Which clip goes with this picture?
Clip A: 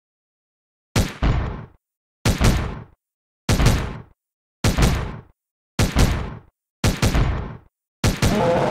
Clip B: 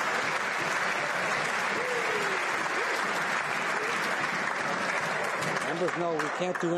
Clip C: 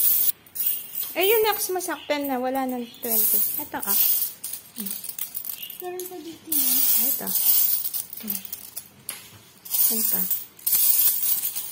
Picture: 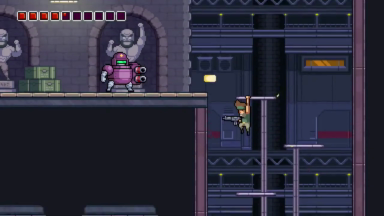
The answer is A